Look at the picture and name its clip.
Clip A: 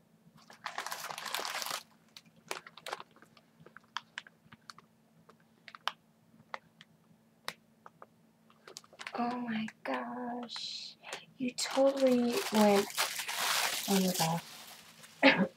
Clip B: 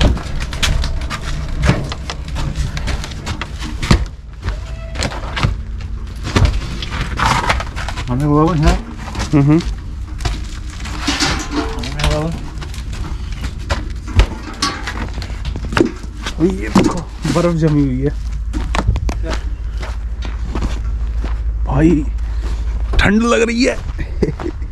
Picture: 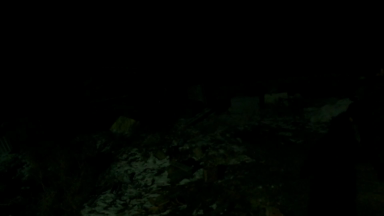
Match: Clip B